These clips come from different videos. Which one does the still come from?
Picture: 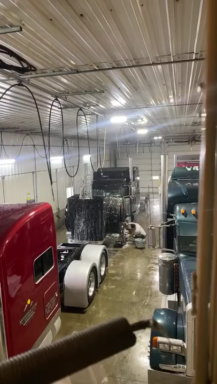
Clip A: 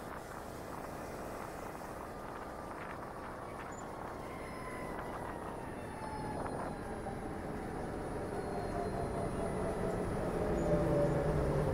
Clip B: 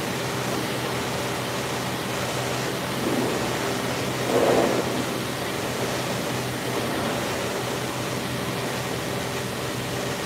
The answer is B